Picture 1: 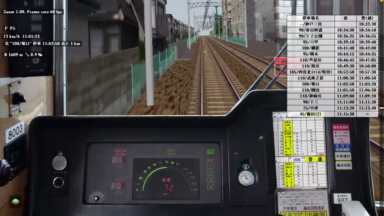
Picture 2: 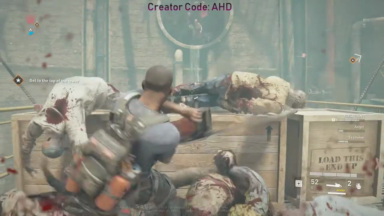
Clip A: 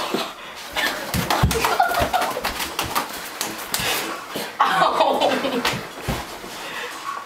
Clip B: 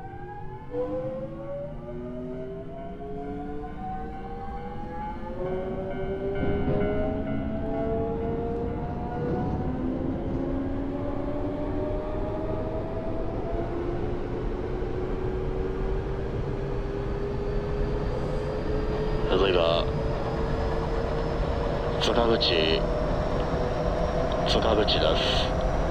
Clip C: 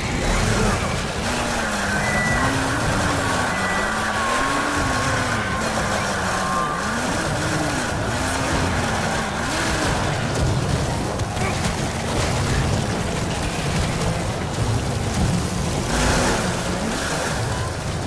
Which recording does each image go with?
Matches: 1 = B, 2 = C